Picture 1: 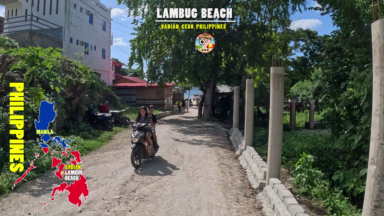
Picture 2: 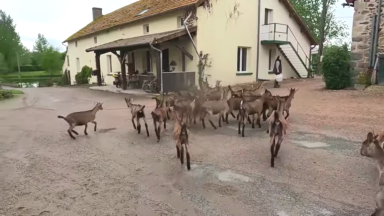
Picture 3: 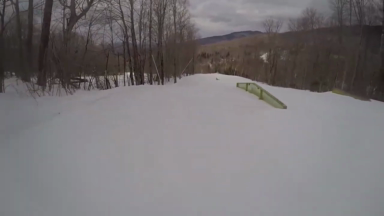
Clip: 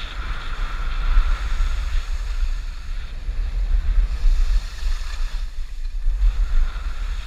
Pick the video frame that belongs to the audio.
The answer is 3